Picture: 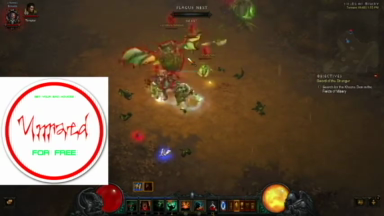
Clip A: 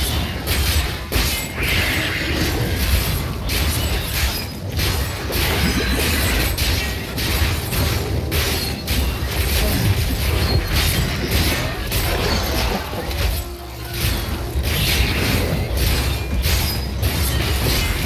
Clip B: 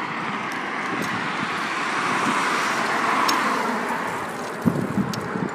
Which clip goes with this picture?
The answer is A